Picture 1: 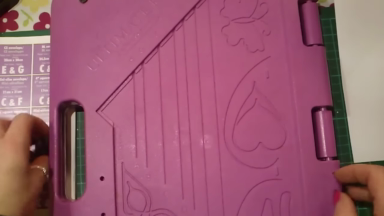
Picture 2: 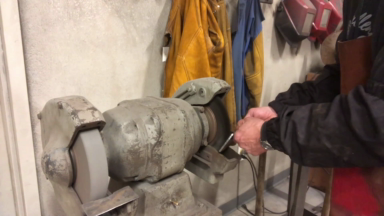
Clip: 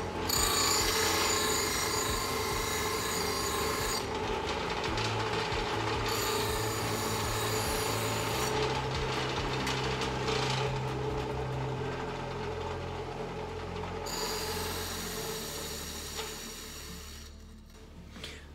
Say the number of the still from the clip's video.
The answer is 2